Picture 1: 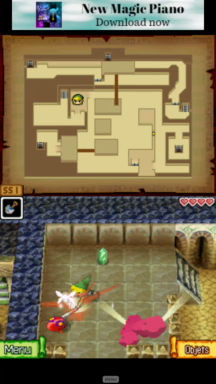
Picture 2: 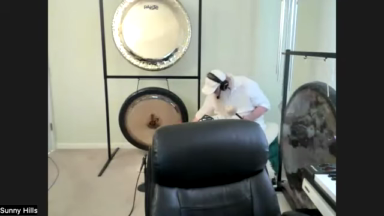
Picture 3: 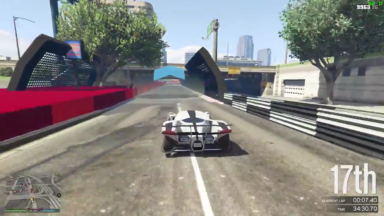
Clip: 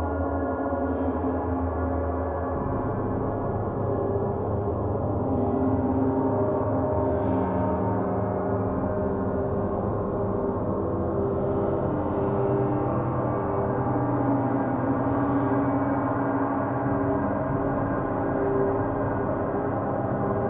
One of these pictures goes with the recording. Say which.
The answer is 2